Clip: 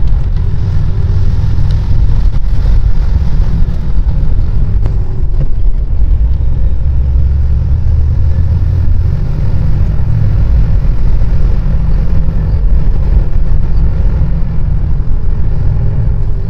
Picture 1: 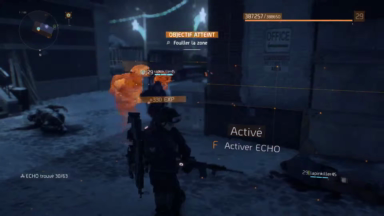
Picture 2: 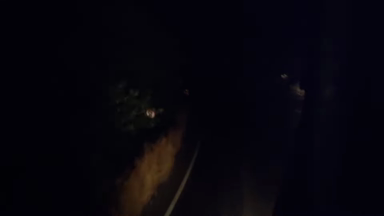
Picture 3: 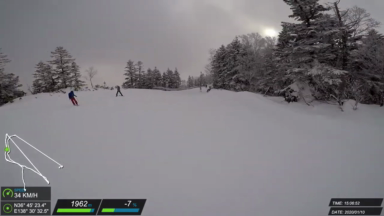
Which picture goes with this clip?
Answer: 2